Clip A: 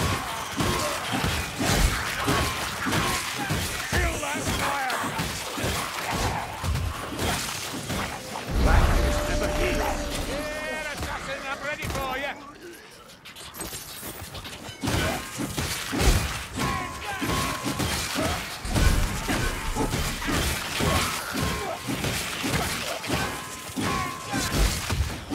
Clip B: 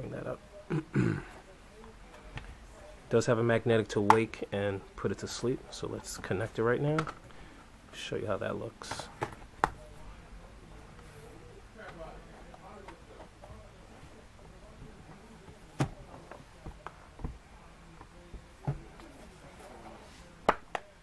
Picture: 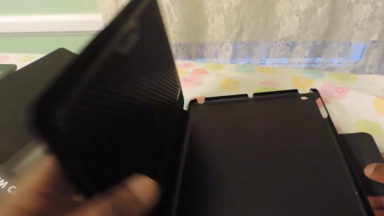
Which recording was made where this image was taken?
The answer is B